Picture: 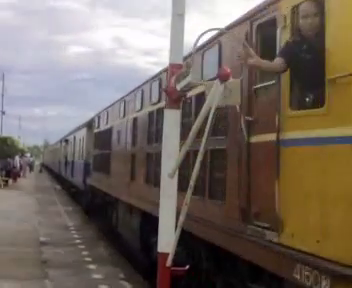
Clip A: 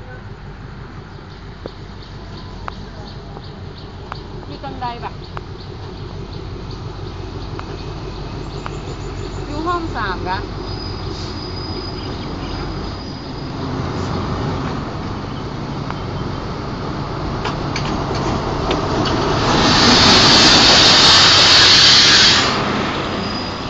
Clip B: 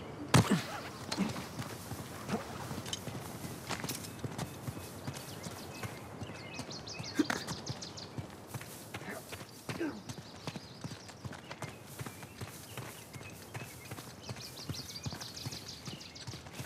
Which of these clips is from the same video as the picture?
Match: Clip A